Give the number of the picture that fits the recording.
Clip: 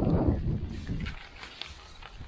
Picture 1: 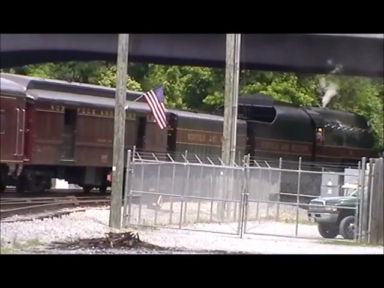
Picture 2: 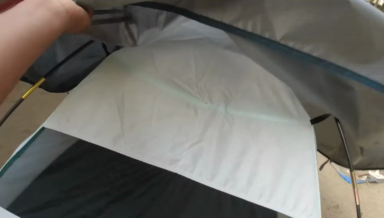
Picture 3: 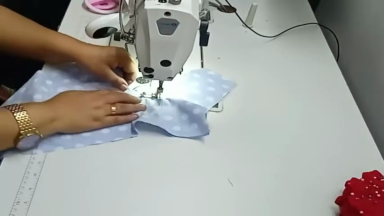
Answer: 2